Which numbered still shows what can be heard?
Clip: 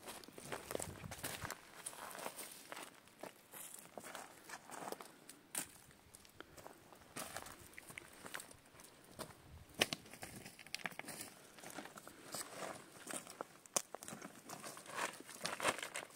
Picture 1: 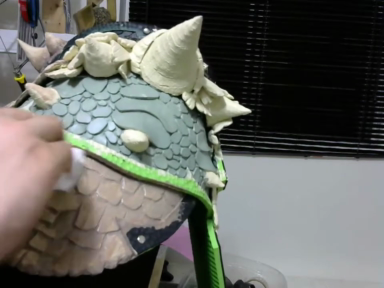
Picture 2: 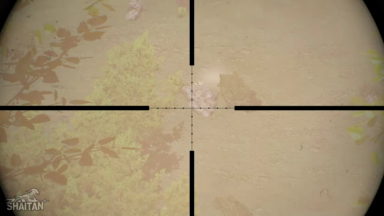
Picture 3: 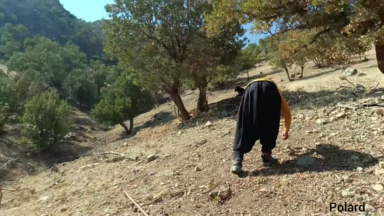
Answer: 3